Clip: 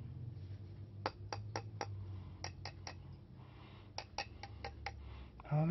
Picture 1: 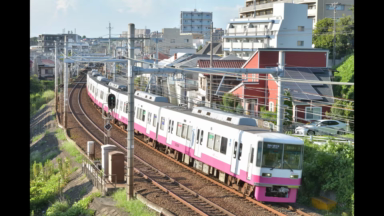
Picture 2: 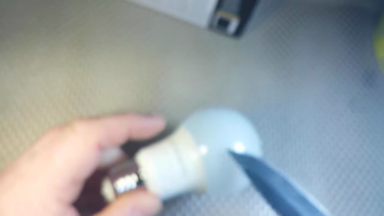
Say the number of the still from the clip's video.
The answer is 2